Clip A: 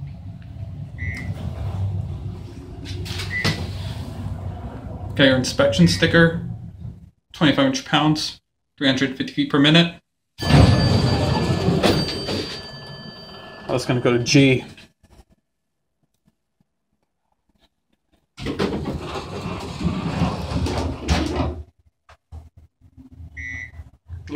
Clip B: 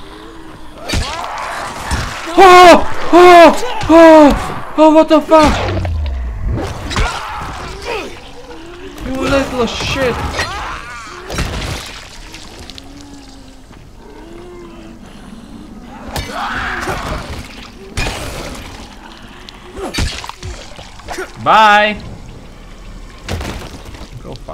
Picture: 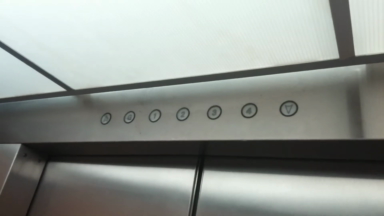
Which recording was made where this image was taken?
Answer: A